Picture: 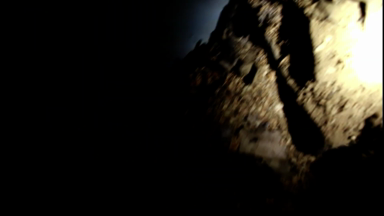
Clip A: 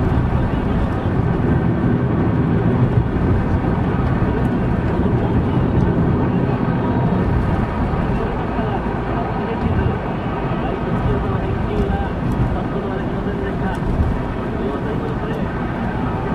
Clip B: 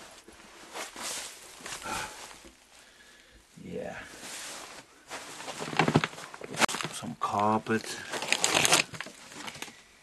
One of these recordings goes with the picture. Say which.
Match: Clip B